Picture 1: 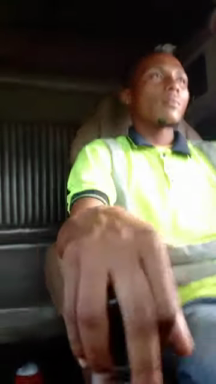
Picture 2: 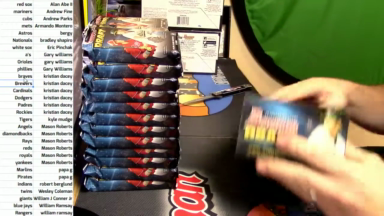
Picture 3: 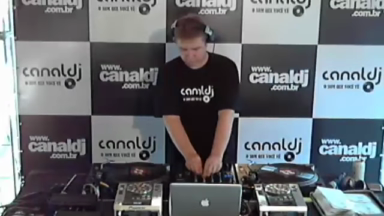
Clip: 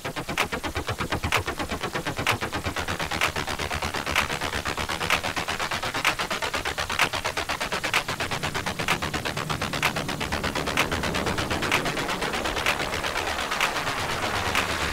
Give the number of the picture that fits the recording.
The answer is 3